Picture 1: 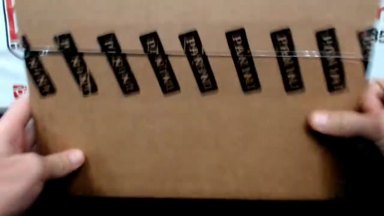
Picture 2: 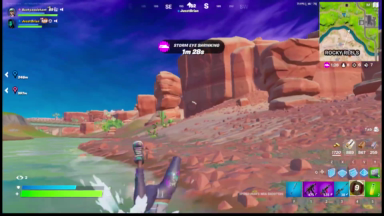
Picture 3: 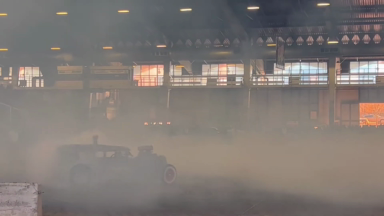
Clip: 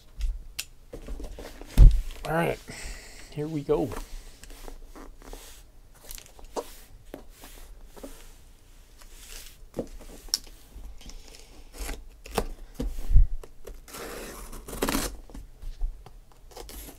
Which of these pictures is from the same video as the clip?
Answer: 1